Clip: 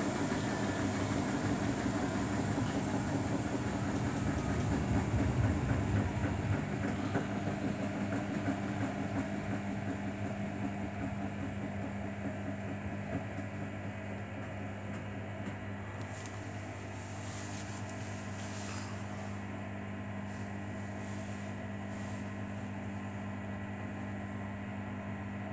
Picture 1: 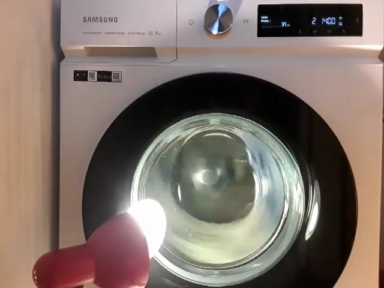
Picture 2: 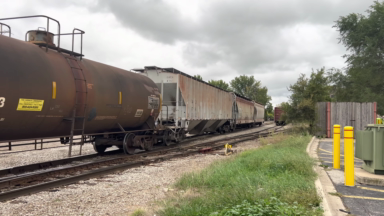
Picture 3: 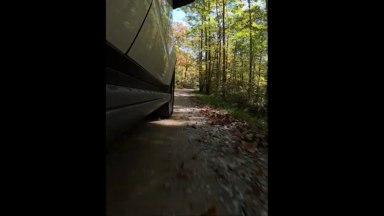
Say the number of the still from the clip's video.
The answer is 1